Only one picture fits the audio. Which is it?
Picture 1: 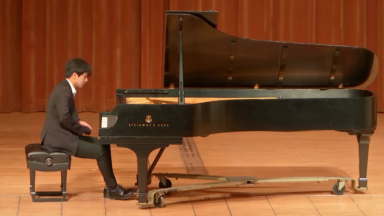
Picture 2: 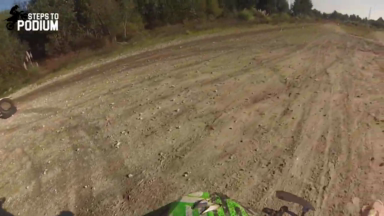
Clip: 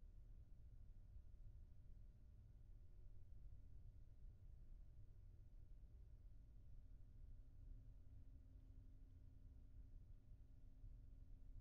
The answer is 1